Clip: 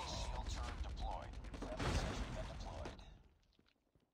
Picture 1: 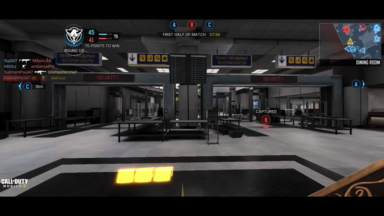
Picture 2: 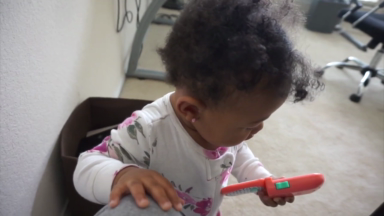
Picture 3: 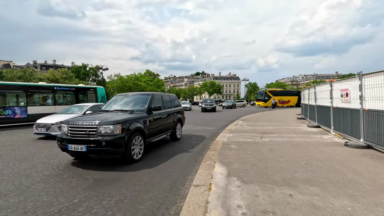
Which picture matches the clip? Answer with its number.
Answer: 1